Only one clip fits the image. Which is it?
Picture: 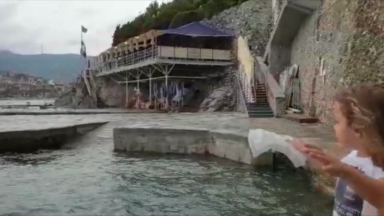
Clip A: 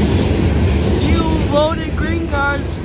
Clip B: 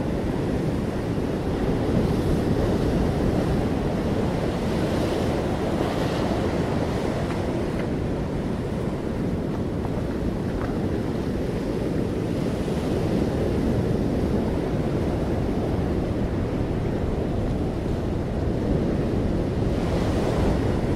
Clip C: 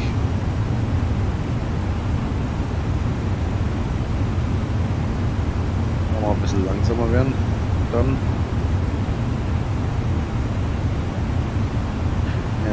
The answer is B